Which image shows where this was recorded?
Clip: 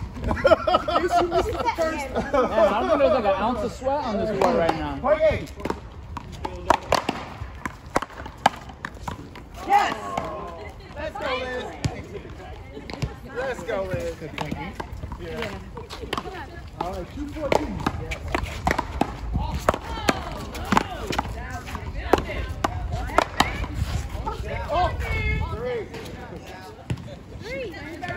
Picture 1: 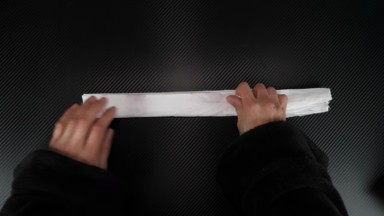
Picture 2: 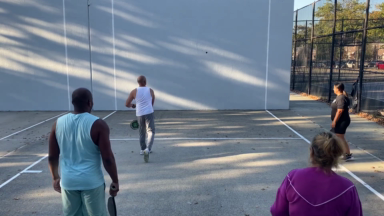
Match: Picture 2